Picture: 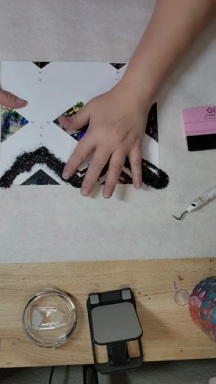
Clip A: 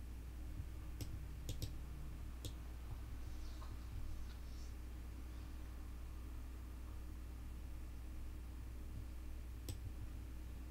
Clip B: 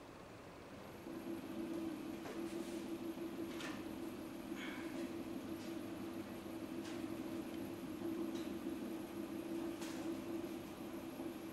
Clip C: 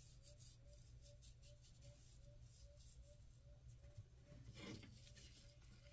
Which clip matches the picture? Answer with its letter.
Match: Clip C